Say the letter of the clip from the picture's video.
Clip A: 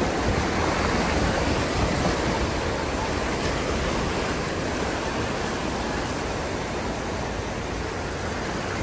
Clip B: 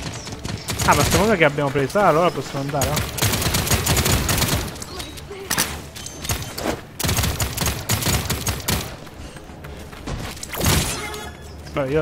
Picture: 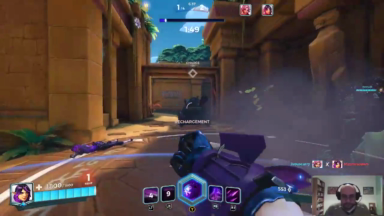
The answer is B